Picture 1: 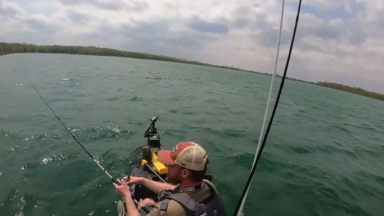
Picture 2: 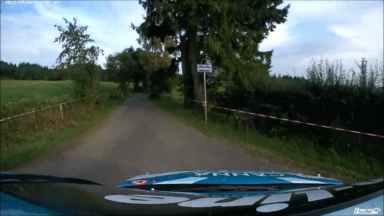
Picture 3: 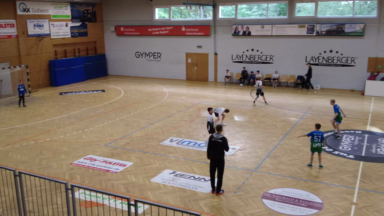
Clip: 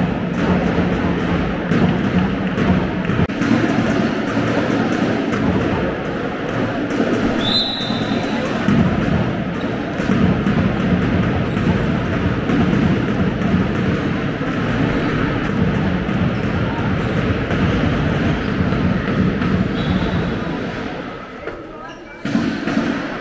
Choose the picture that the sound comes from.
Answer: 3